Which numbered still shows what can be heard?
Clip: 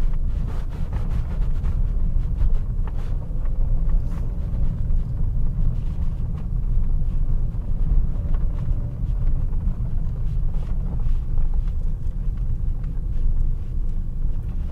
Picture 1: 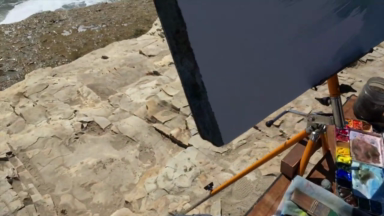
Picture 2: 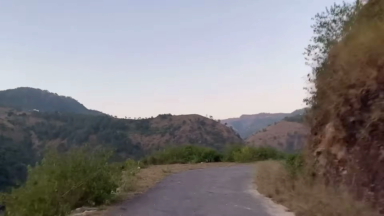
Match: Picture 2